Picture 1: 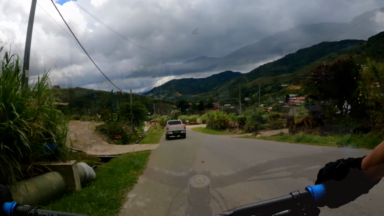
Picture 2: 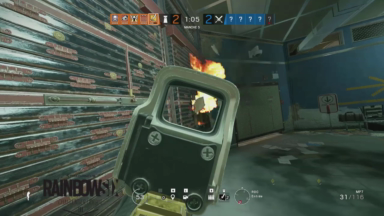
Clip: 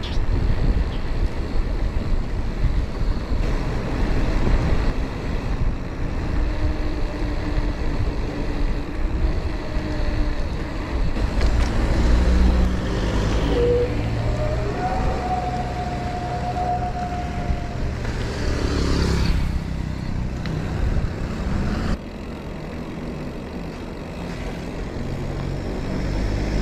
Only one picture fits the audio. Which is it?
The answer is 1